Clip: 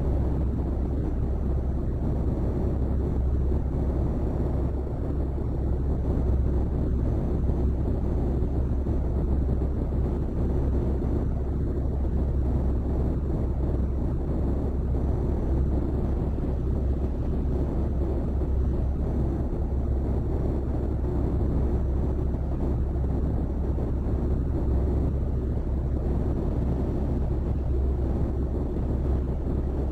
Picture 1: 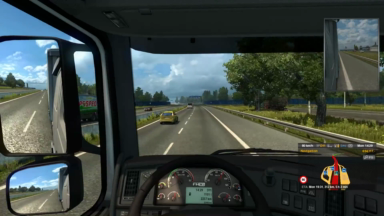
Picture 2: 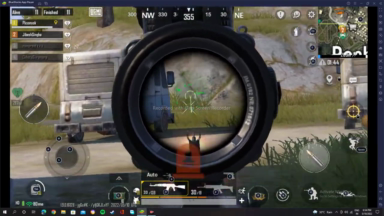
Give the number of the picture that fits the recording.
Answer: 1